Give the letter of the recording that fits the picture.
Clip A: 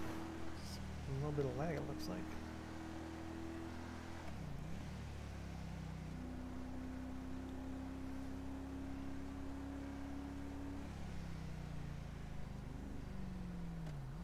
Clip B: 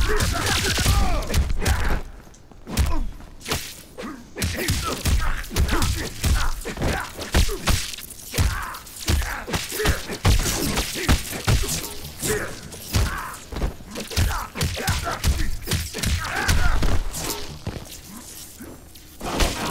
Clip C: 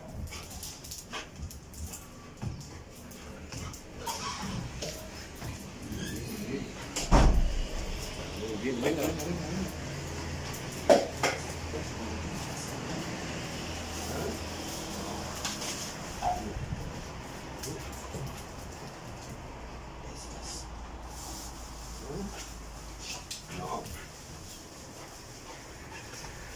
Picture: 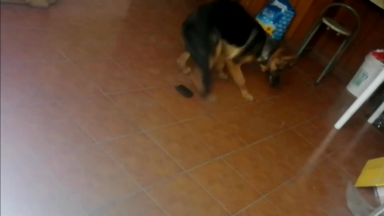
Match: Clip C